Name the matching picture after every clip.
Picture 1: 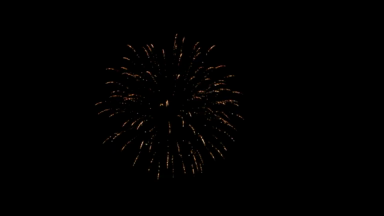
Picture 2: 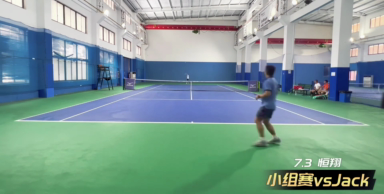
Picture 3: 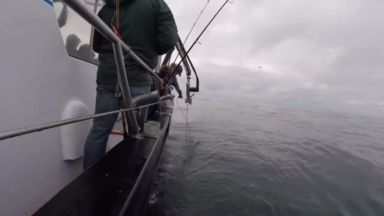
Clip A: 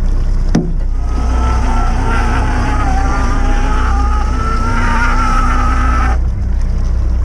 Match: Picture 3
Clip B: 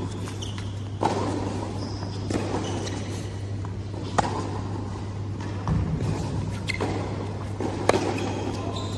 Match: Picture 2